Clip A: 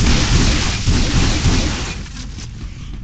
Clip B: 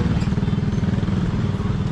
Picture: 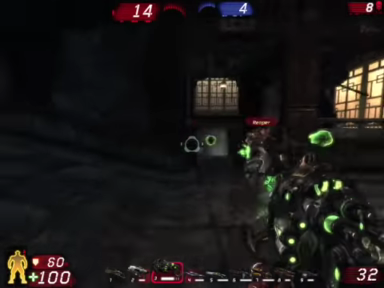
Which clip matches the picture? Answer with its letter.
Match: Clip A